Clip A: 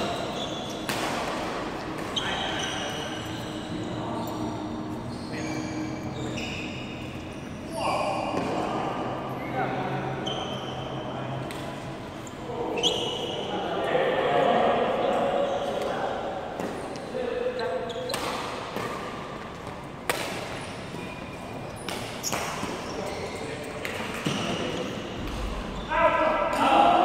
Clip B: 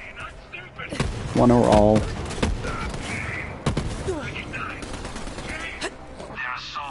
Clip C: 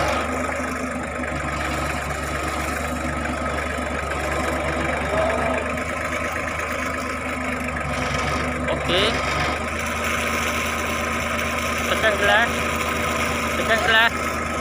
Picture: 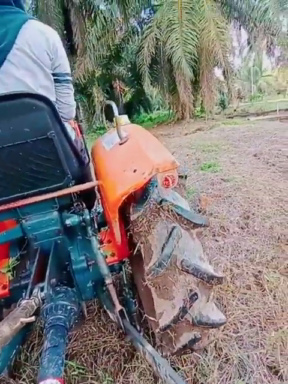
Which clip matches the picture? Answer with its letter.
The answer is C